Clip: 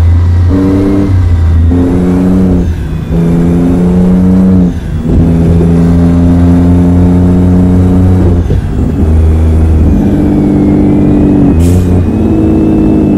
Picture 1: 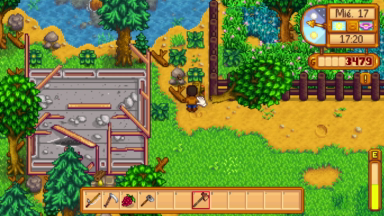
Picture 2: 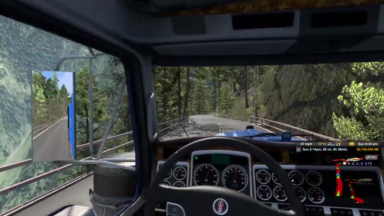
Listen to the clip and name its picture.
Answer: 2